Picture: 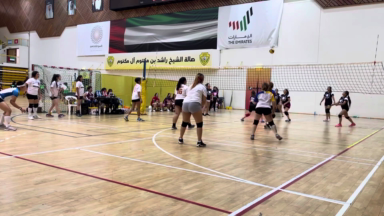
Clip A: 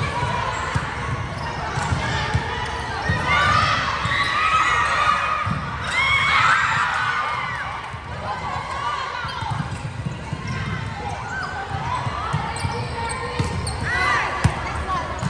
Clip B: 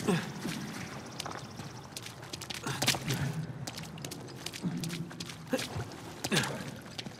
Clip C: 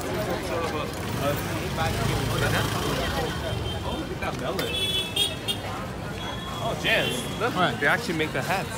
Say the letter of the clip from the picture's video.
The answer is A